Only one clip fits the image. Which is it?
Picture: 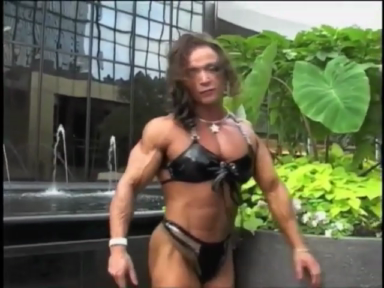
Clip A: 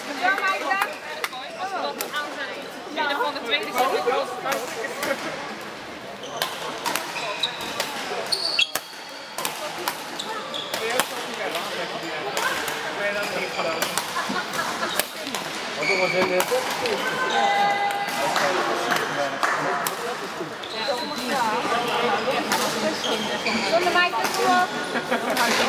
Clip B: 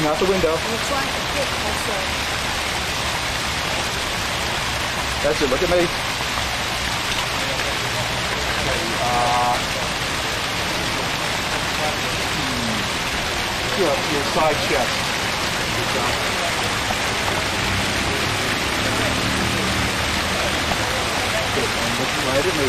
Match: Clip B